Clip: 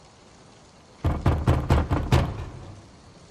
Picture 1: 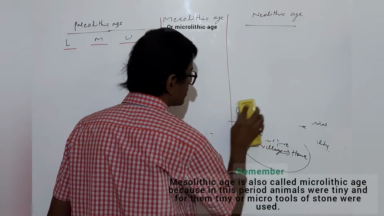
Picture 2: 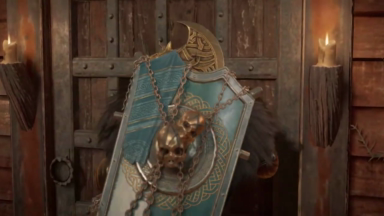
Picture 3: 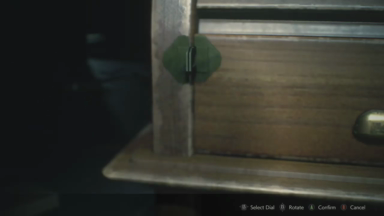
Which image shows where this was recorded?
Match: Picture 2